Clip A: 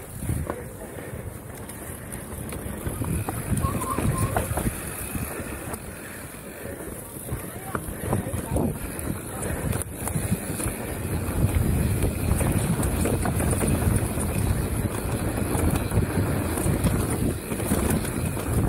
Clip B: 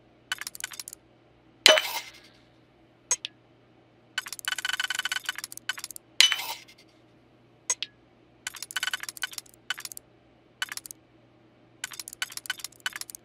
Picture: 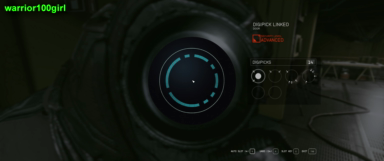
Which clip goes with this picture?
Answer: B